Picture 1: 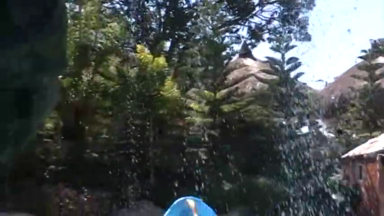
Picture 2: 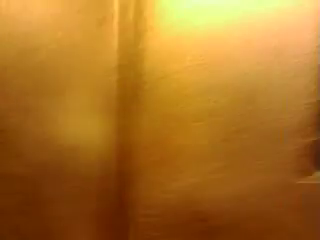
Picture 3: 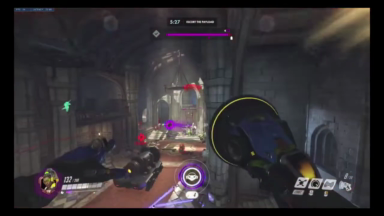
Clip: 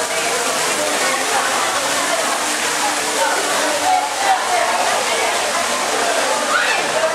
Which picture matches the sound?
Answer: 1